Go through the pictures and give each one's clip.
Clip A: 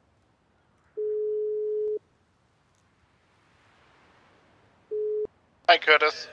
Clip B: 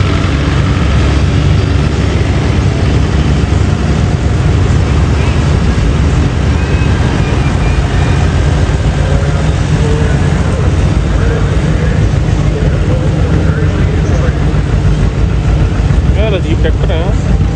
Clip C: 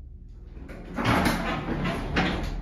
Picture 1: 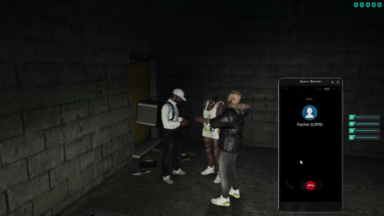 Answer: A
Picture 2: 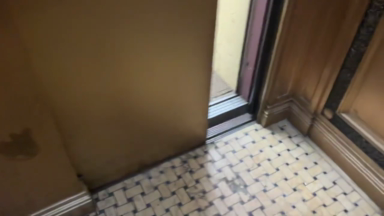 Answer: C